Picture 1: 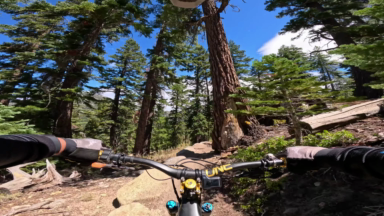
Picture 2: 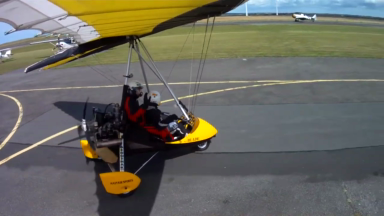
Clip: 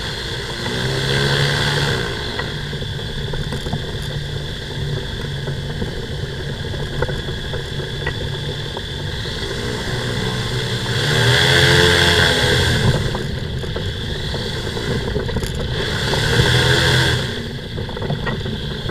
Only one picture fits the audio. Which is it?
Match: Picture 2